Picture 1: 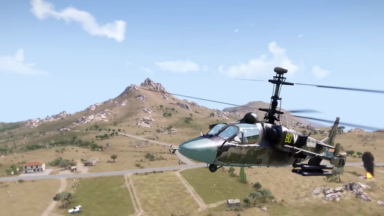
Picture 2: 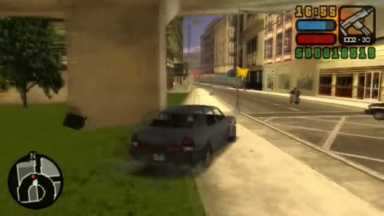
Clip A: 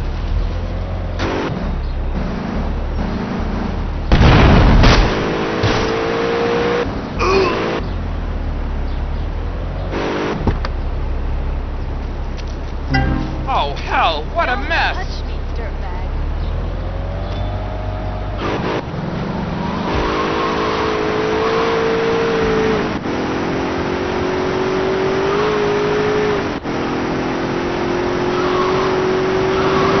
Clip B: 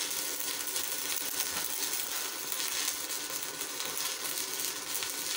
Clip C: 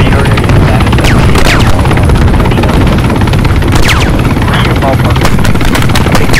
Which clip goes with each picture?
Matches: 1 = C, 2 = A